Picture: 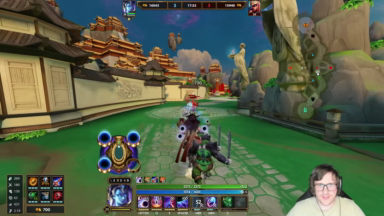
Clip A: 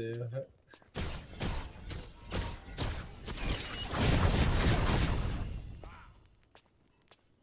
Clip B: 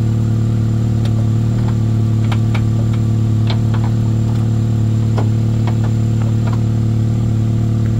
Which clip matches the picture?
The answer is A